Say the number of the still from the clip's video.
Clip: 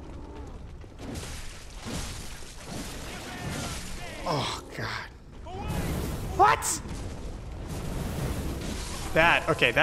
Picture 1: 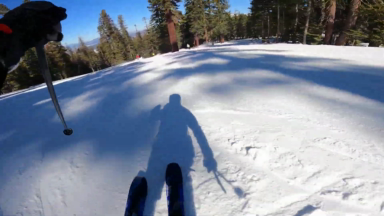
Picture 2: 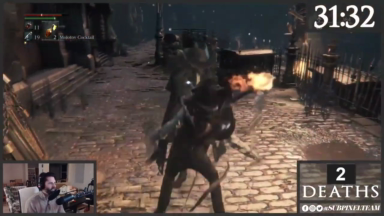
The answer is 2